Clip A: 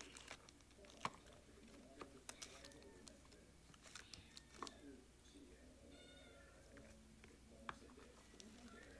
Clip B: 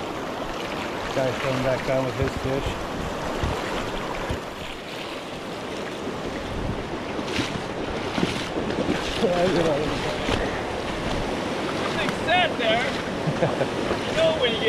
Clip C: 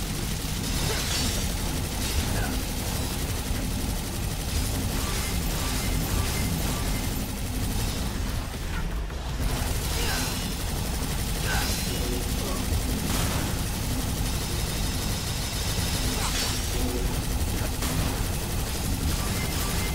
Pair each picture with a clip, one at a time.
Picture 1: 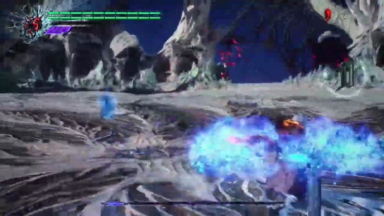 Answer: C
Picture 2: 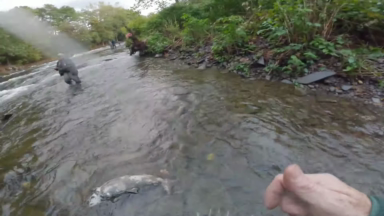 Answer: B